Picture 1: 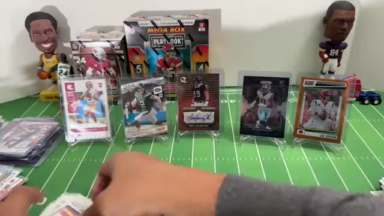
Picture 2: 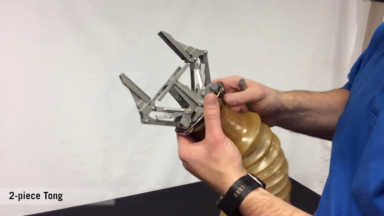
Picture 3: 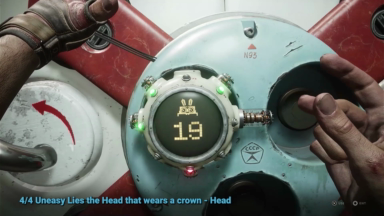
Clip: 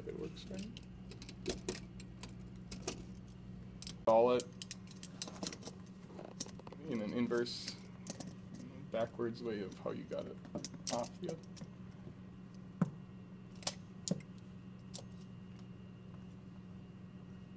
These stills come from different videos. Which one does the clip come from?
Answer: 2